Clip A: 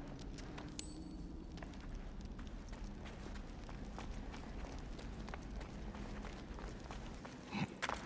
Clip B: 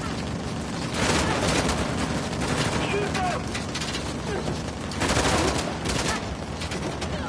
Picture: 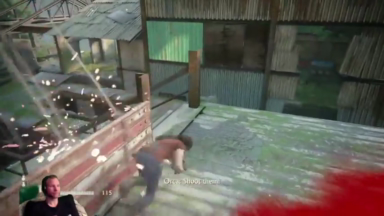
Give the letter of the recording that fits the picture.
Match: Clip B